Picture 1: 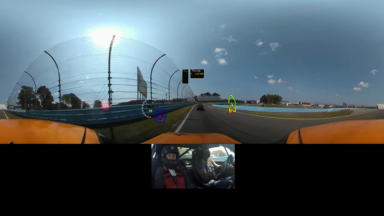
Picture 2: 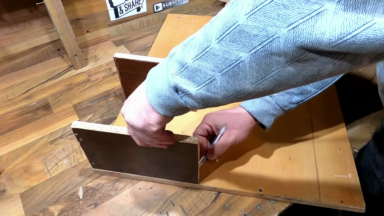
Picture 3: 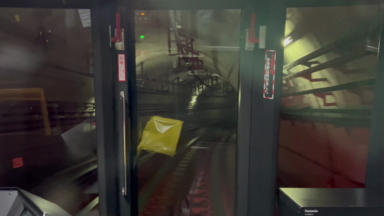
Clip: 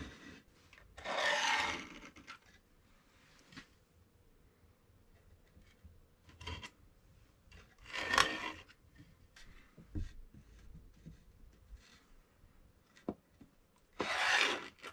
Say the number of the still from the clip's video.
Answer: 2